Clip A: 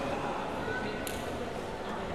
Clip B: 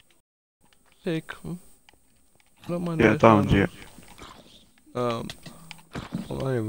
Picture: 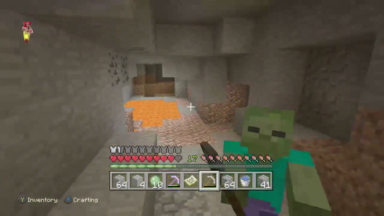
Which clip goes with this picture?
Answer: B